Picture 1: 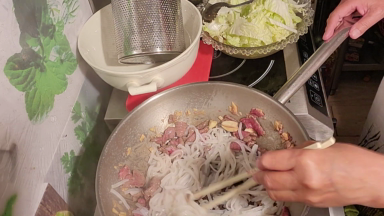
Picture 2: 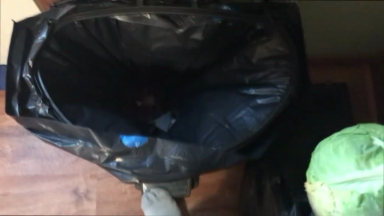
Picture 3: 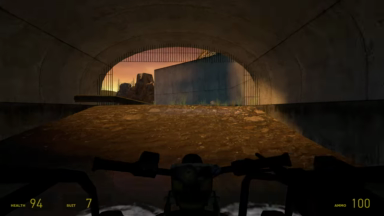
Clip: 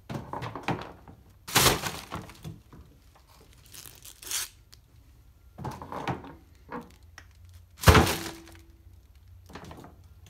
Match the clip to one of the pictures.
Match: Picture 2